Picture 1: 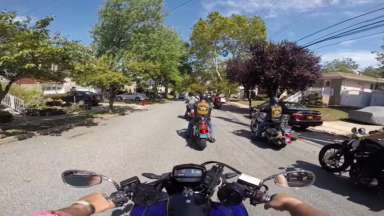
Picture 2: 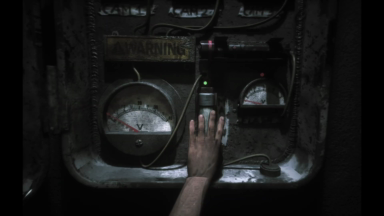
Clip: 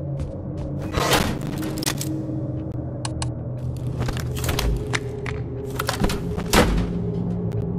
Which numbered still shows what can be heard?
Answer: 2